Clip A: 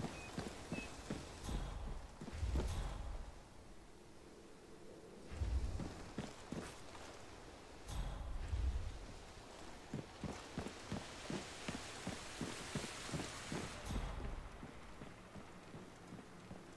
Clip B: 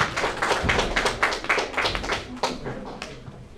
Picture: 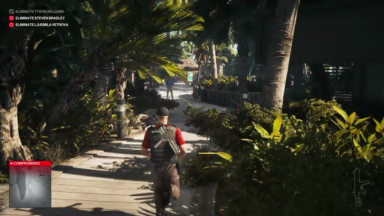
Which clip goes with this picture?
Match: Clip A